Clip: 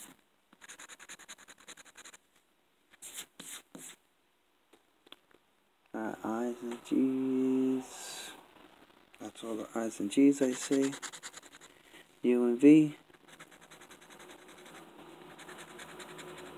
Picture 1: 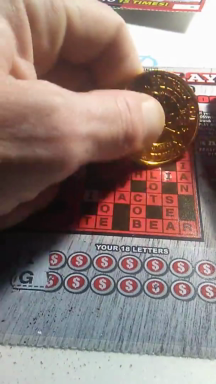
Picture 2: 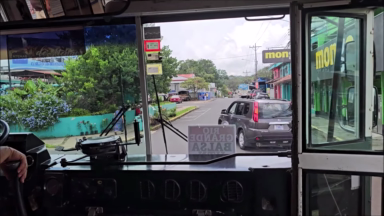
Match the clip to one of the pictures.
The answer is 1